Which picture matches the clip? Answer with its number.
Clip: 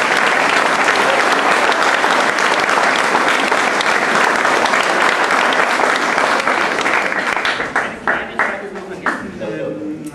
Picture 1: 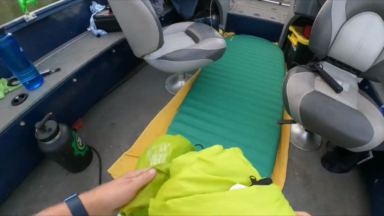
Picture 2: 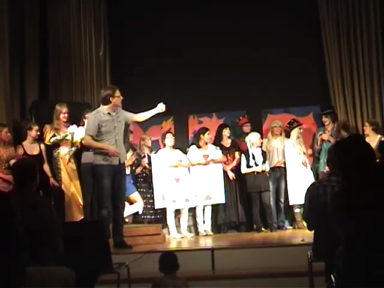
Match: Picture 2